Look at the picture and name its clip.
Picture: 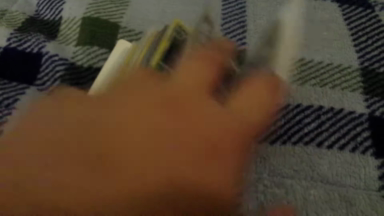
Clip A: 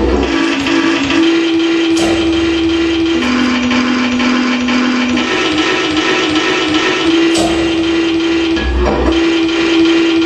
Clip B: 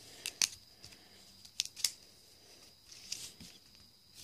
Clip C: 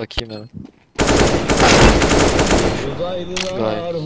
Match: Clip B